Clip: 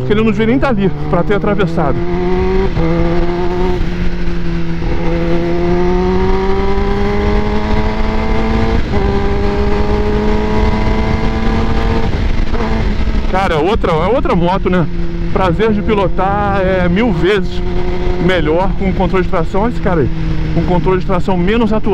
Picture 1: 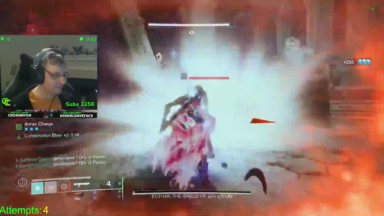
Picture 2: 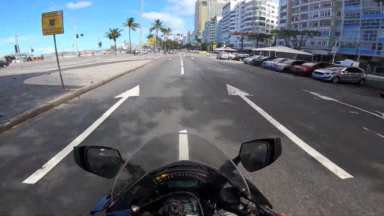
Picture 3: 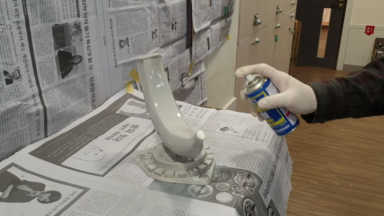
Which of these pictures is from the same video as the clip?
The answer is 2